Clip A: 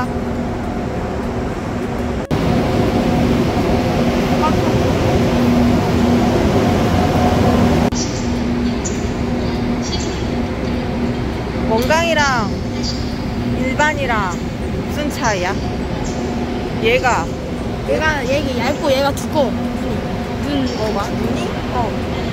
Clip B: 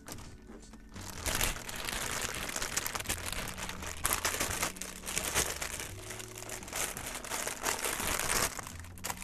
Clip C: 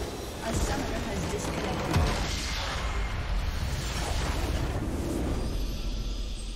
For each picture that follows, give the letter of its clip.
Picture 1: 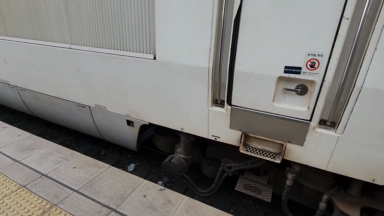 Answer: A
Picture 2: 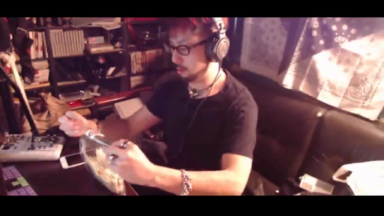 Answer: B